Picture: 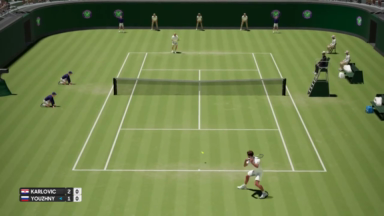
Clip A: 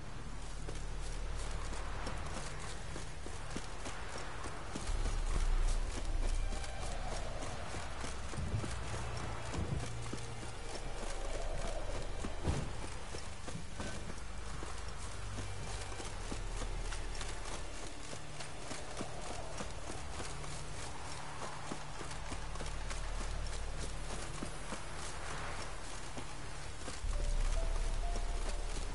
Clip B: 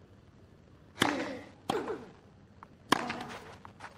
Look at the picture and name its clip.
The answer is B